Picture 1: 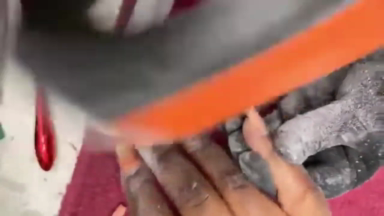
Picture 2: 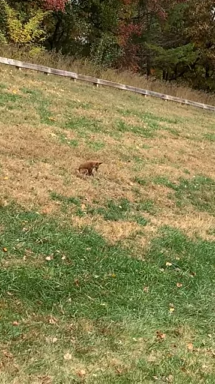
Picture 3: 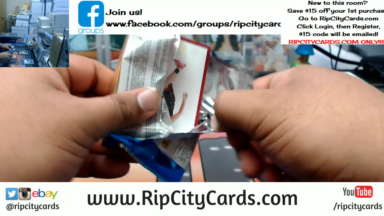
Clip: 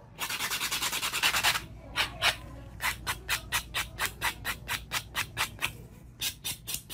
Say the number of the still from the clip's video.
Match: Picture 1